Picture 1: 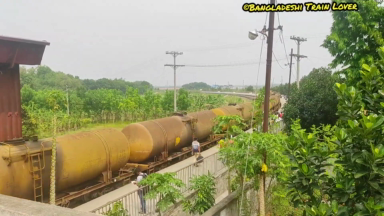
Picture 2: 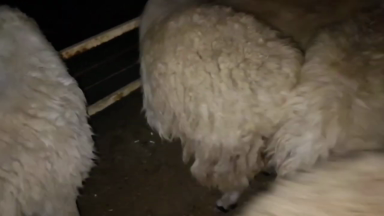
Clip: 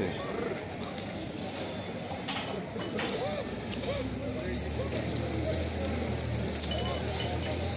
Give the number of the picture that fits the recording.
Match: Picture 2